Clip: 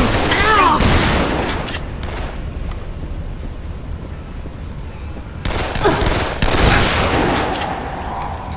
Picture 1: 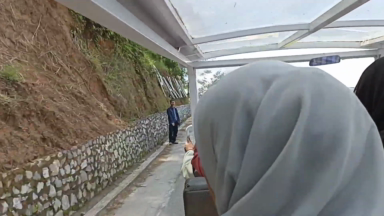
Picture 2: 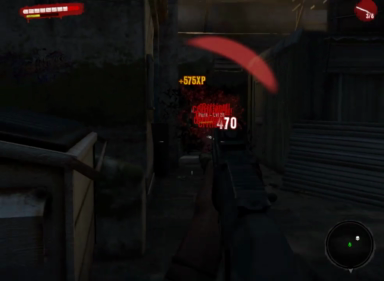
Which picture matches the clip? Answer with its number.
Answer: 2